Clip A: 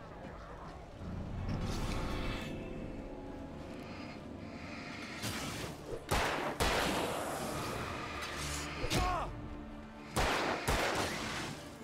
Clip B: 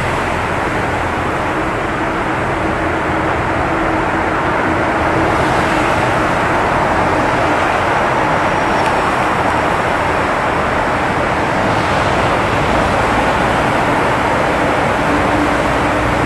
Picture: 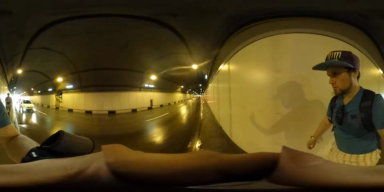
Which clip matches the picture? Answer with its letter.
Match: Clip B